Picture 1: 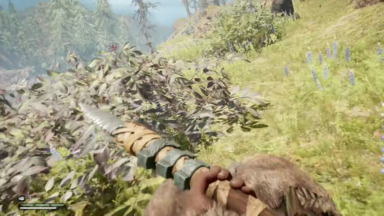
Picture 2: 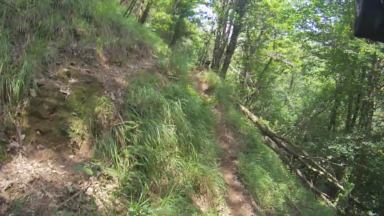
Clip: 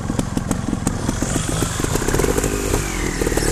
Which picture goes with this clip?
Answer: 2